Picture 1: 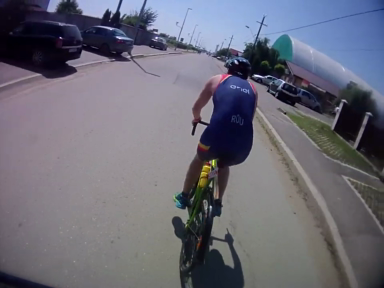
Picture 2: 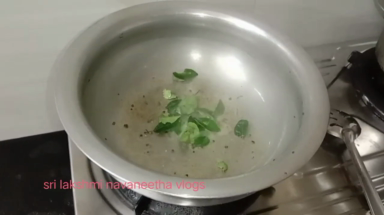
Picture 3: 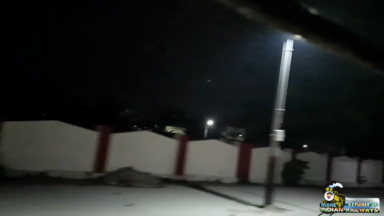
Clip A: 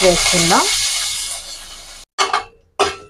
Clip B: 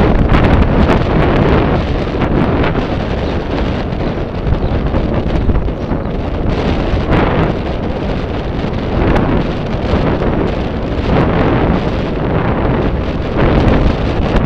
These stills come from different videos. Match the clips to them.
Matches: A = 2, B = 1